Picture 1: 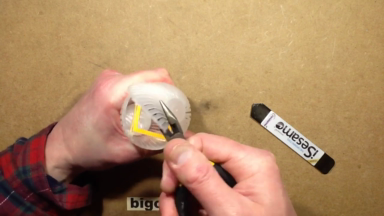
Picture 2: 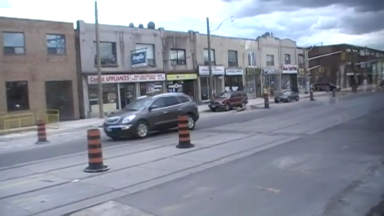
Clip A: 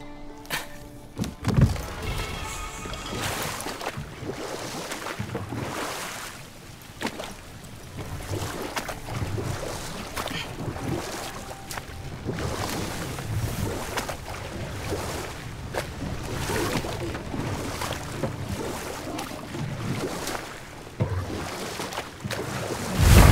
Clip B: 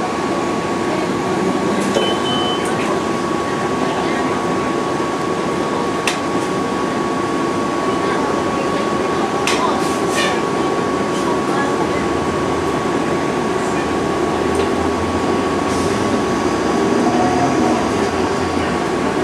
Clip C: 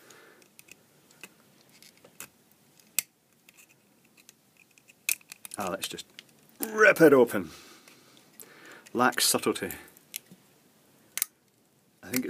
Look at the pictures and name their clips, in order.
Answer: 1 C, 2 B